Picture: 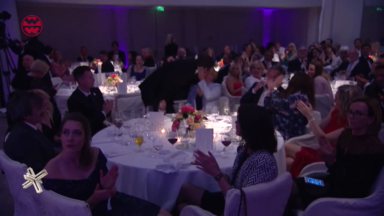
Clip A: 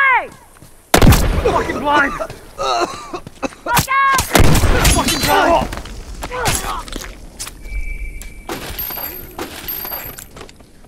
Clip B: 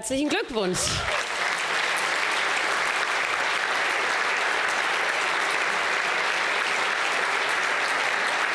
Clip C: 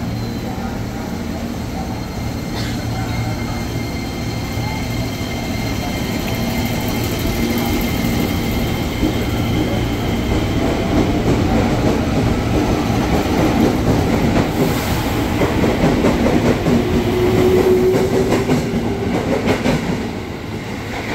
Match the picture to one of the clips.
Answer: B